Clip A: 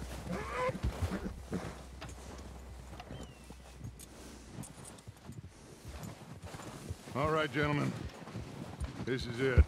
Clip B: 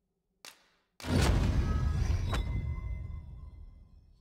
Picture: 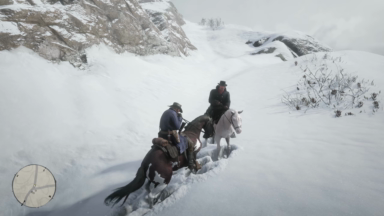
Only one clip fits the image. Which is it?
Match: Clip A